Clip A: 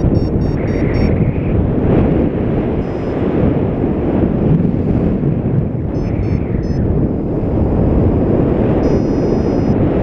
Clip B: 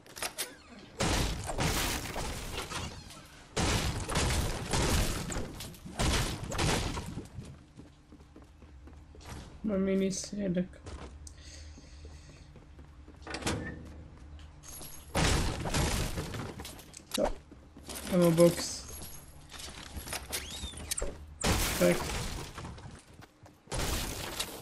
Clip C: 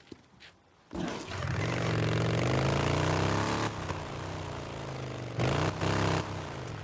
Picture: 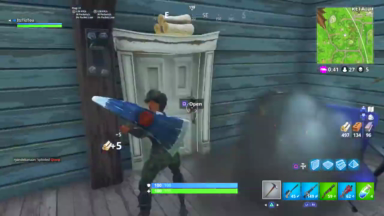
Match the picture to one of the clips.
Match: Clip B